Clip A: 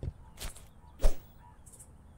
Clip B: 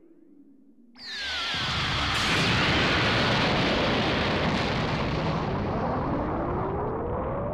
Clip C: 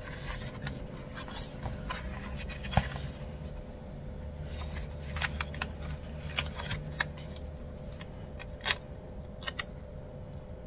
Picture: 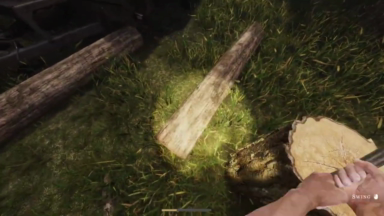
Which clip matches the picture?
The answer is A